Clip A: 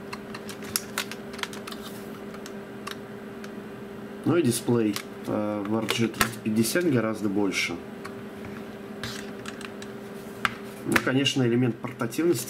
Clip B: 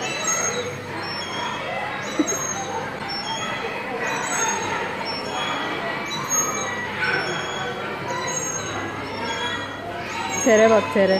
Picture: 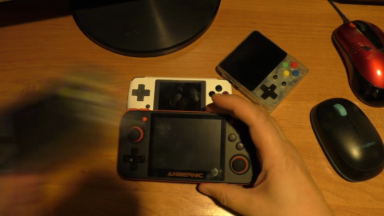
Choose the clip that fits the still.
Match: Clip A